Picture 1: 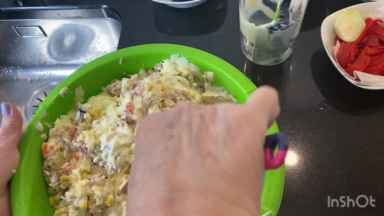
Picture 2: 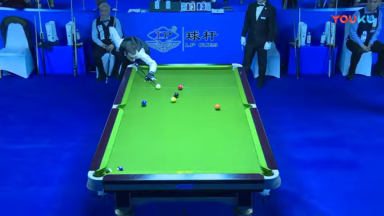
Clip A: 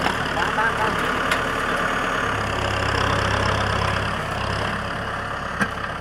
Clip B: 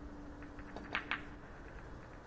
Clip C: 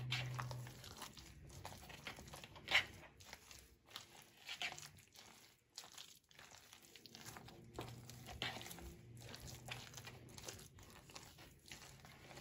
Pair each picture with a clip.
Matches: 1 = C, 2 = B